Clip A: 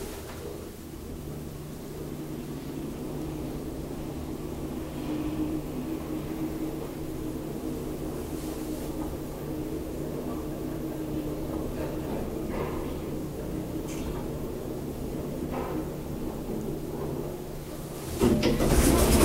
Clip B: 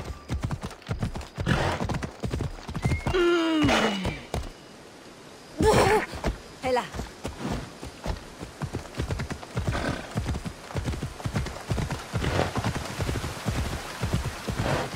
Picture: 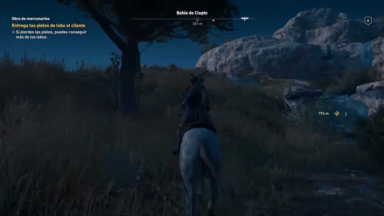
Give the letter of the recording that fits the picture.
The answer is B